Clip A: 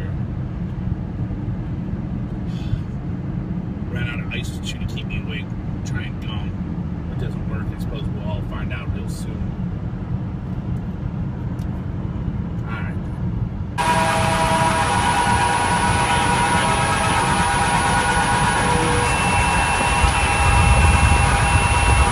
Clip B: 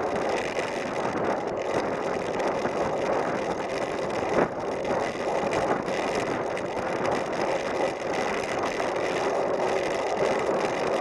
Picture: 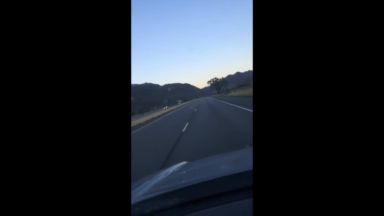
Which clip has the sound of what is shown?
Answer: A